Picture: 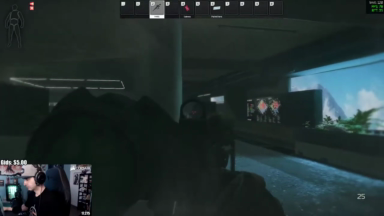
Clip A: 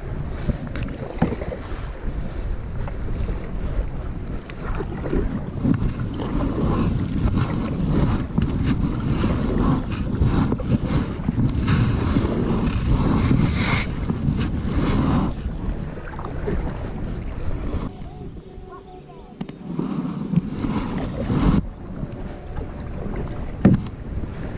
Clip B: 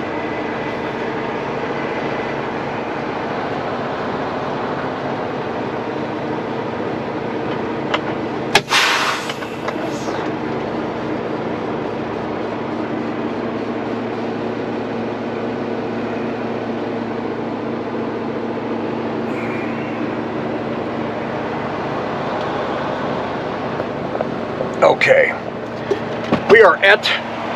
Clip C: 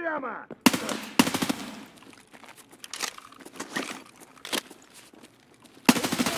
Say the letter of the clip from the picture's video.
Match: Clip C